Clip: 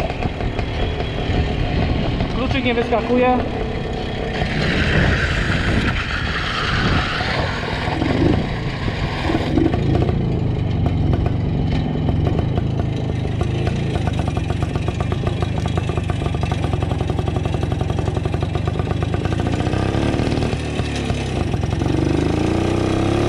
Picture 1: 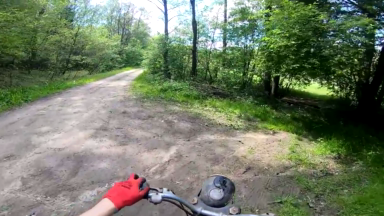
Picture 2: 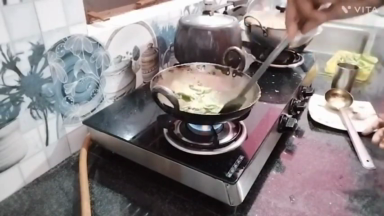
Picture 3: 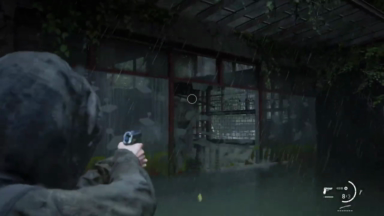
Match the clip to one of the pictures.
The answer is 1